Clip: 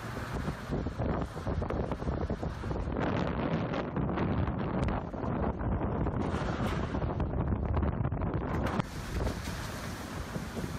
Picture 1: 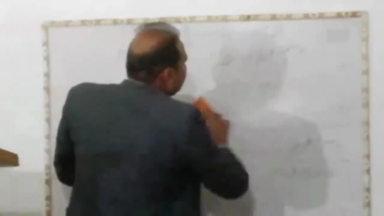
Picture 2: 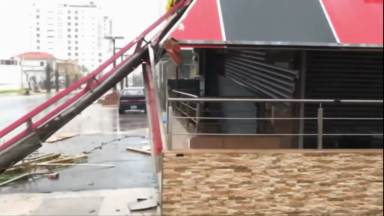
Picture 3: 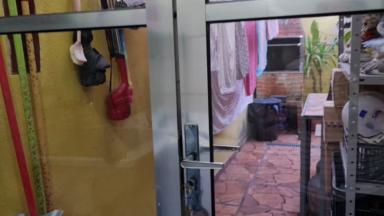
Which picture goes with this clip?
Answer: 2